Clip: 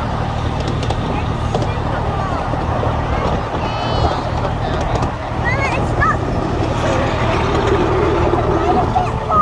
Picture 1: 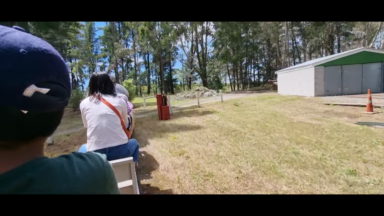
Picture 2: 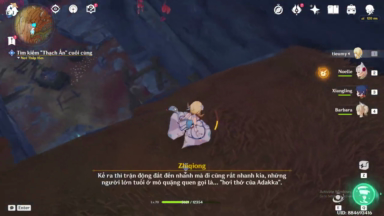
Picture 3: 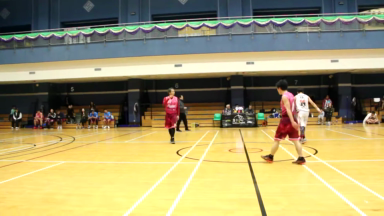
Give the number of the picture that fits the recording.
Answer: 1